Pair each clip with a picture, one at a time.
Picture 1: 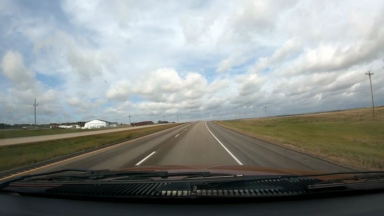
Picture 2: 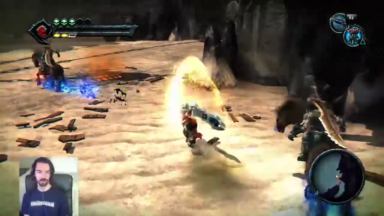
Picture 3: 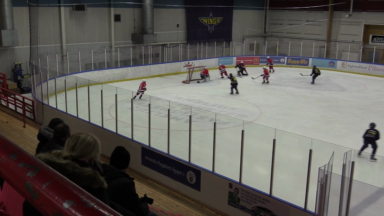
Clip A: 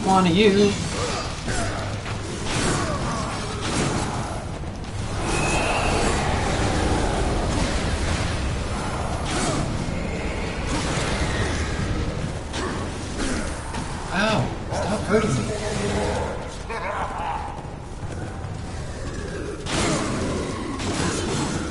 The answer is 2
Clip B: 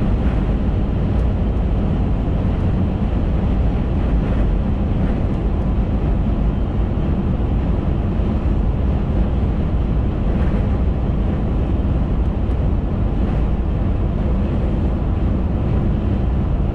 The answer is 1